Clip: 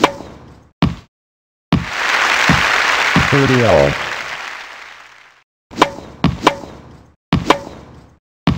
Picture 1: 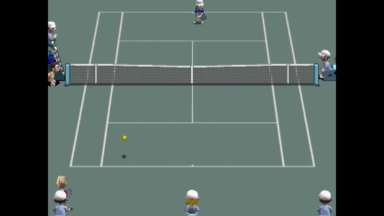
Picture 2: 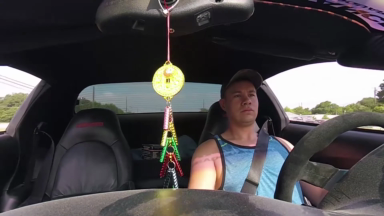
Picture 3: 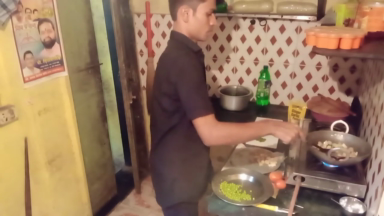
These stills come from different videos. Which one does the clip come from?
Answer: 1